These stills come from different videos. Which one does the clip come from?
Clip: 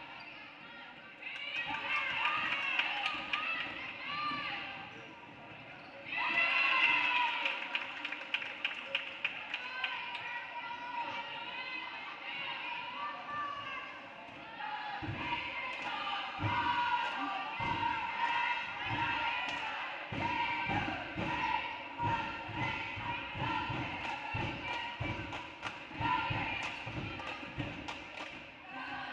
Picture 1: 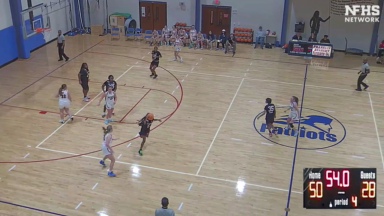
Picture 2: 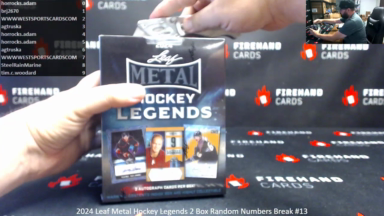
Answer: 1